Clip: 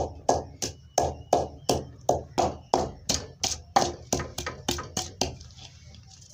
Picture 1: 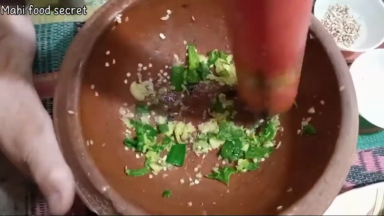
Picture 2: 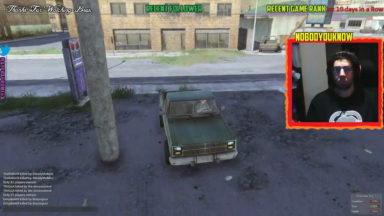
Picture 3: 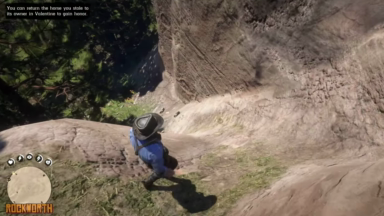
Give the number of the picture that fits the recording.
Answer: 1